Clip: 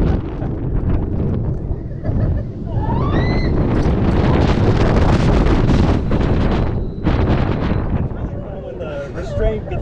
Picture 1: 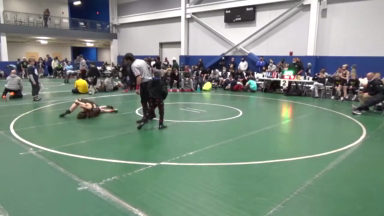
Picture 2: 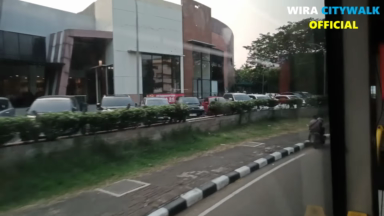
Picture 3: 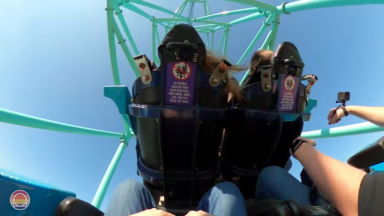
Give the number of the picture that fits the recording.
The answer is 3